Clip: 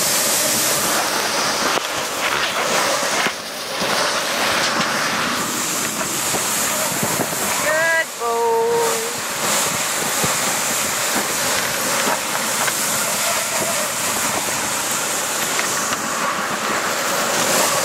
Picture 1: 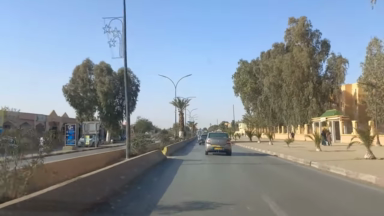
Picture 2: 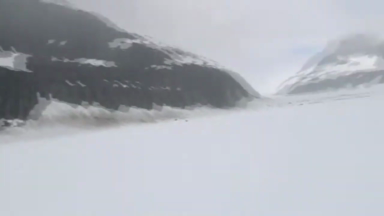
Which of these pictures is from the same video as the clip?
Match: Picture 2